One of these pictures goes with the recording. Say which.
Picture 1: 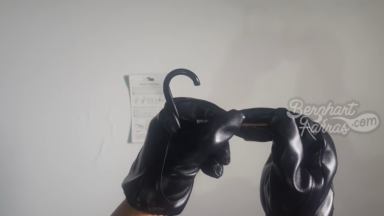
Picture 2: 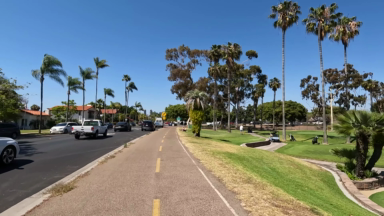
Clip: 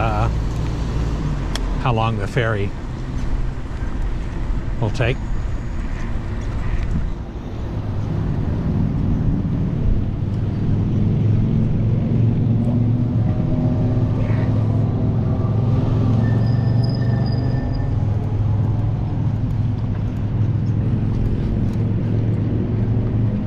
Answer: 2